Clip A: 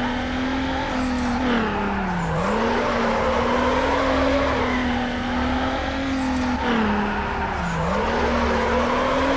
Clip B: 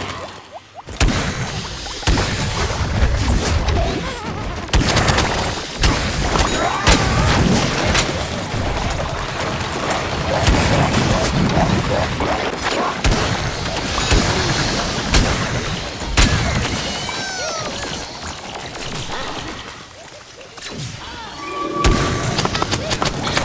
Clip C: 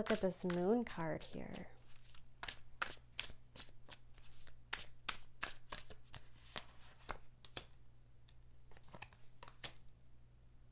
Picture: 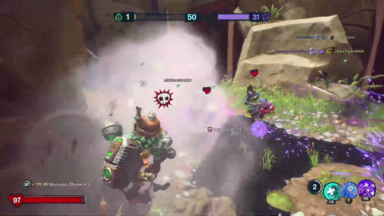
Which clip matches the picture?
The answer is B